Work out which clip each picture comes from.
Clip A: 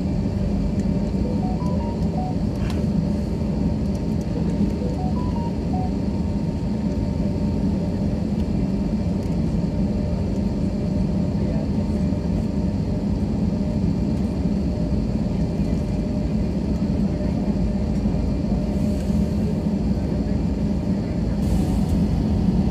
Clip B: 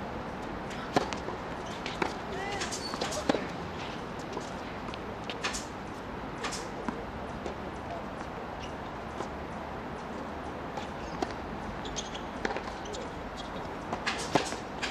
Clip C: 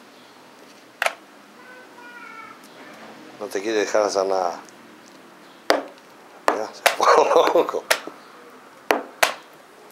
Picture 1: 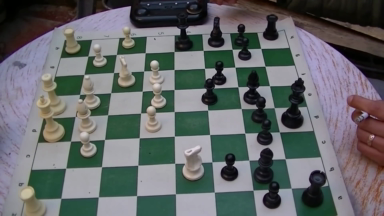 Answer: C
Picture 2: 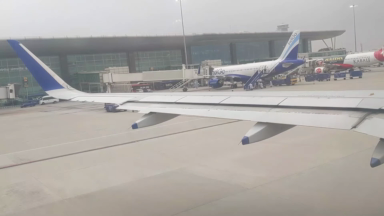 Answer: A